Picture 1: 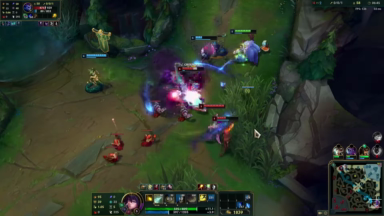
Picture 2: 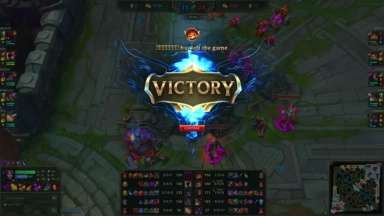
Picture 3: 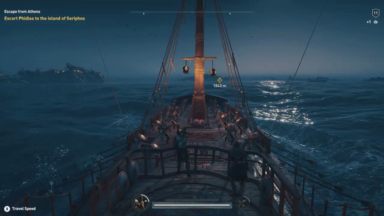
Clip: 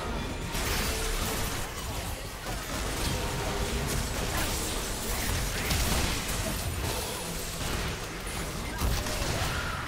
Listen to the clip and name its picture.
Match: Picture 1